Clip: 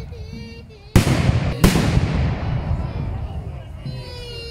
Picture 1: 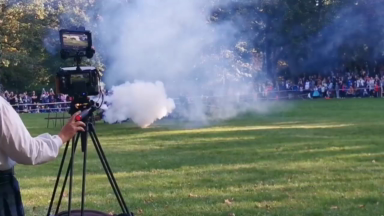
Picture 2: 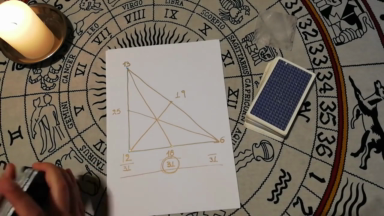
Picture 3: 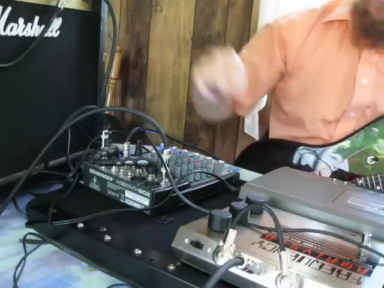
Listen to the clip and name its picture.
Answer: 1